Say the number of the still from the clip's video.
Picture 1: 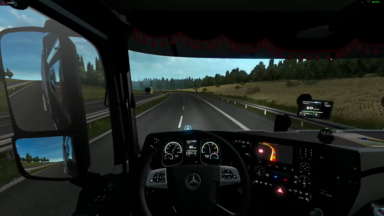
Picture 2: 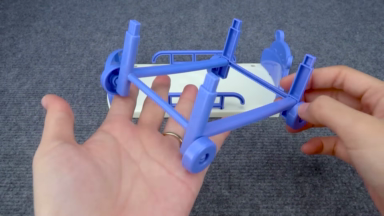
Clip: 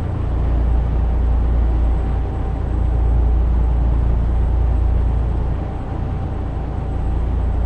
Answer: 1